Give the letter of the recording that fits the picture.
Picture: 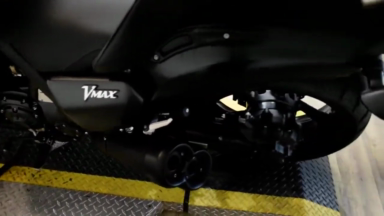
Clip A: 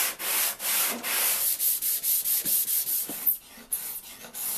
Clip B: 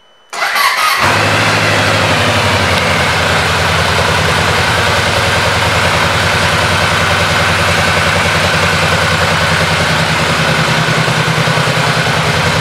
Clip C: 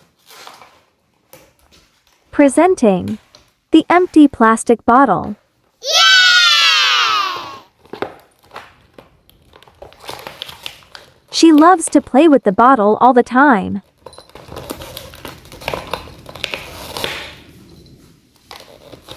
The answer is B